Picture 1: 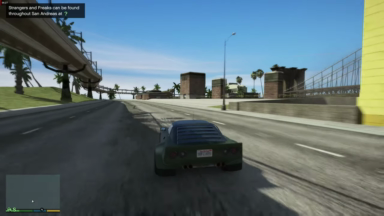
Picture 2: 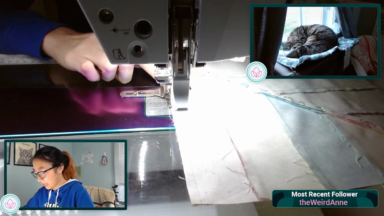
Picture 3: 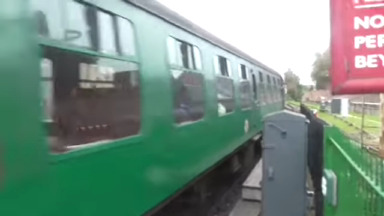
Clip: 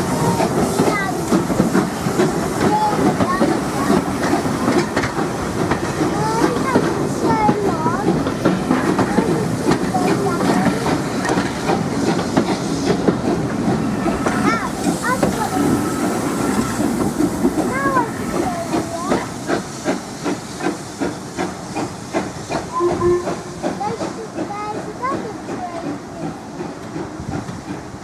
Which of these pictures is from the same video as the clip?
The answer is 3